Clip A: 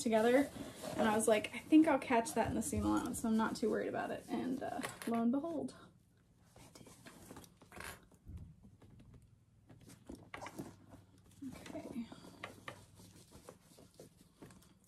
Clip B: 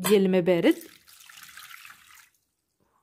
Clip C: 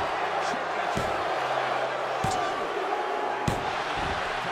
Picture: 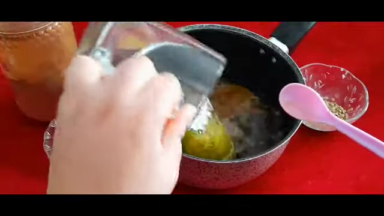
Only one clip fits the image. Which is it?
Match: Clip B